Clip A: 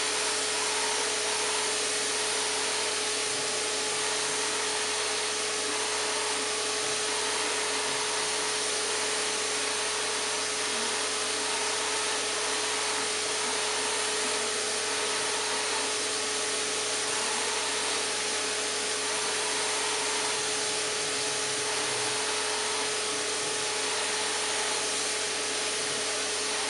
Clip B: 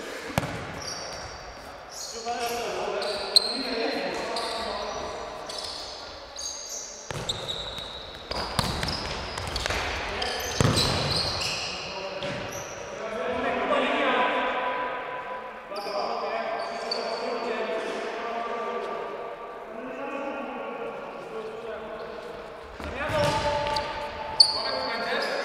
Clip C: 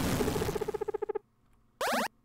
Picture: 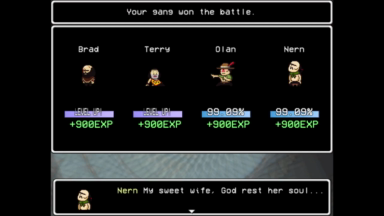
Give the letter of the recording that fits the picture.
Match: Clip C